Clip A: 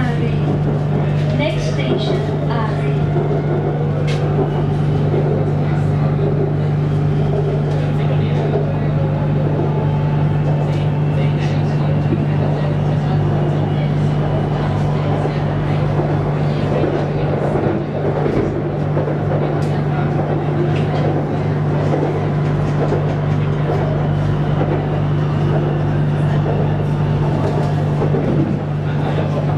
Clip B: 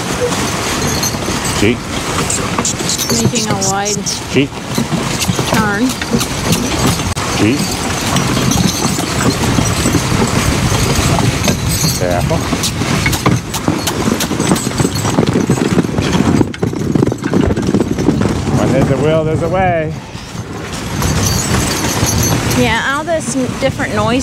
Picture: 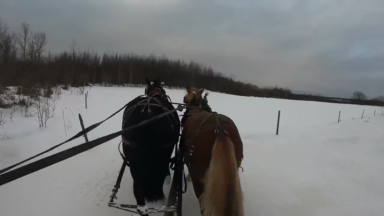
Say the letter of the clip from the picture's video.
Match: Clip B